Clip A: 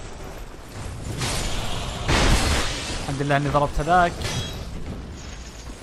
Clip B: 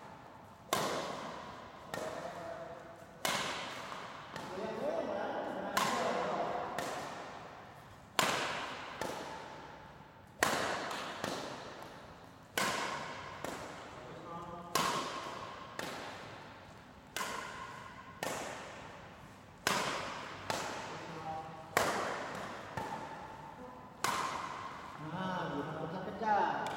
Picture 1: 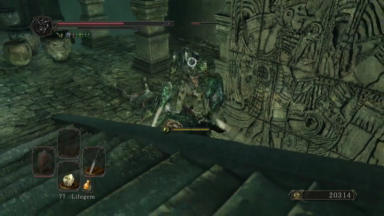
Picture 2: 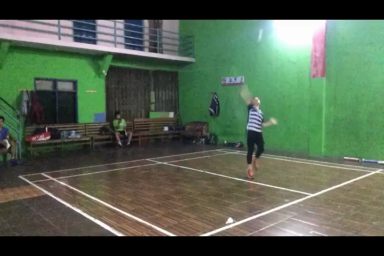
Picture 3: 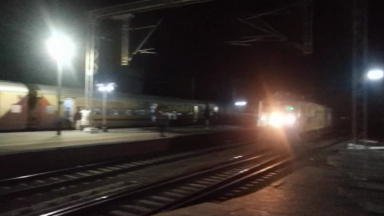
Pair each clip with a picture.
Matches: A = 1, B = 2